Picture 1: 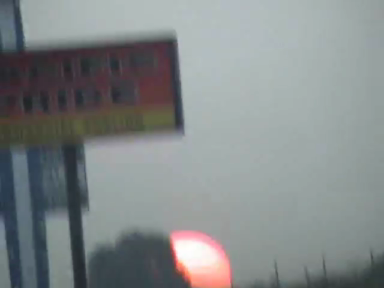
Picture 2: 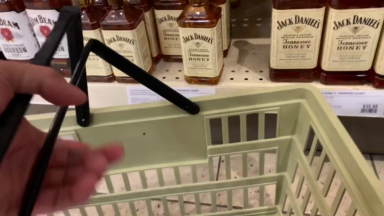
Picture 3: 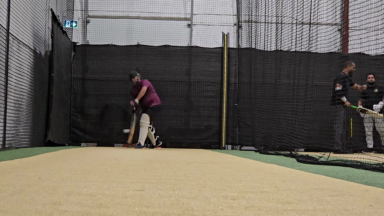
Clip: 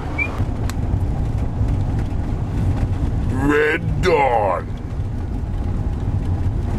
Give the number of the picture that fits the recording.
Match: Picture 1